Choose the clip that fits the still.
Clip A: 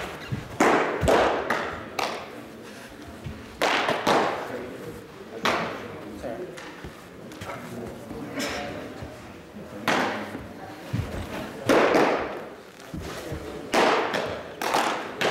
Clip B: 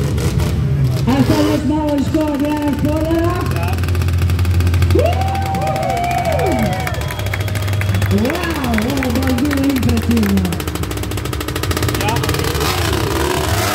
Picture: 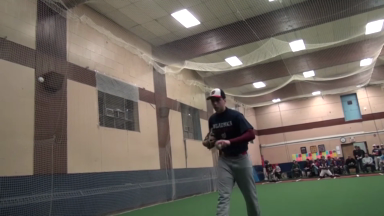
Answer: A